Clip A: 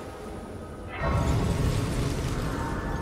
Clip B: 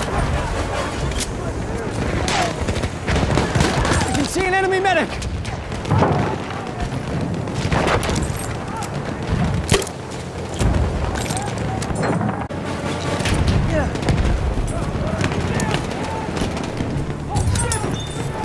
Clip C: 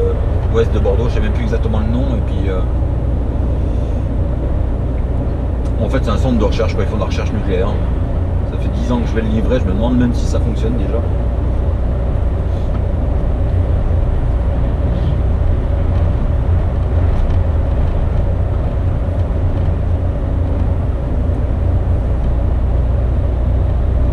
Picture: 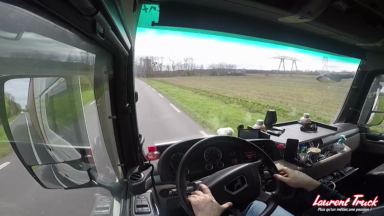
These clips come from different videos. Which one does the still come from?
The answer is C